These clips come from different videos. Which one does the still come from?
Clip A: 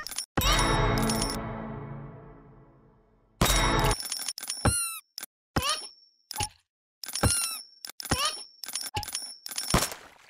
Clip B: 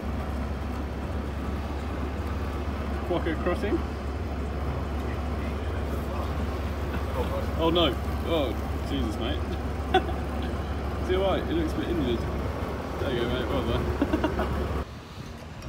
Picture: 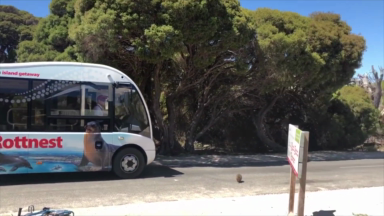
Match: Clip B